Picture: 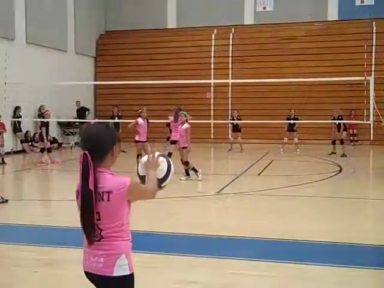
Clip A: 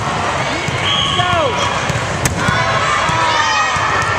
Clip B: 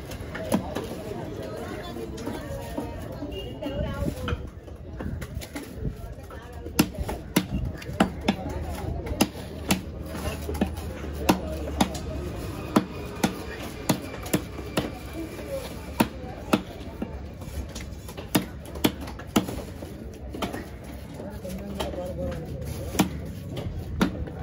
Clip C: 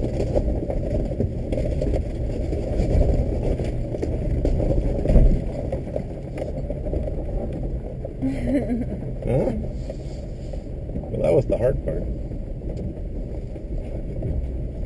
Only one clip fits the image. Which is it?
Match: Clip A